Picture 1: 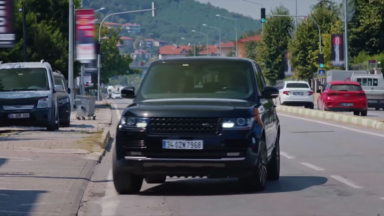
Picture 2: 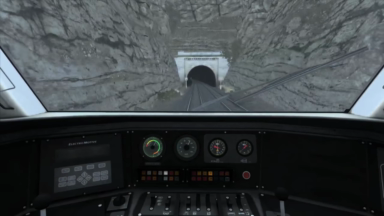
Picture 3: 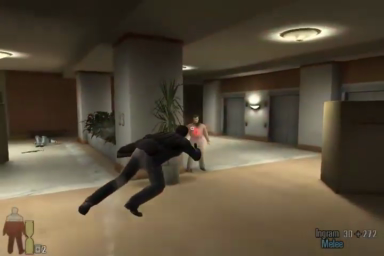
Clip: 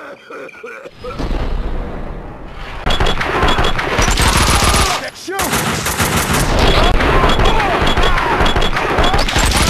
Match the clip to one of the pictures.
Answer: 3